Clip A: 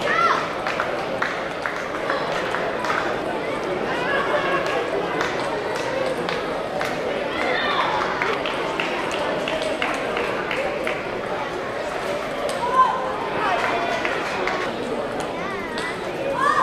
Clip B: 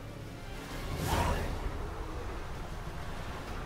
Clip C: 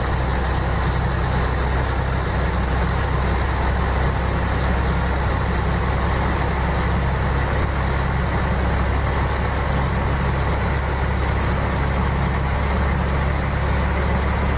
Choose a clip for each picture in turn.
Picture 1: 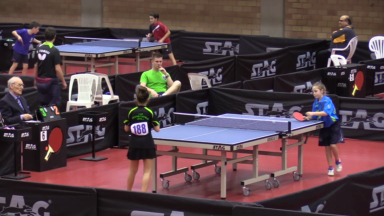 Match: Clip A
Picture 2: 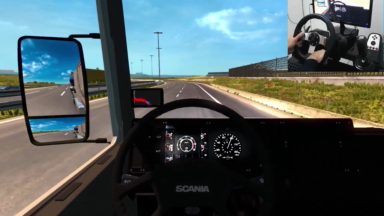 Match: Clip C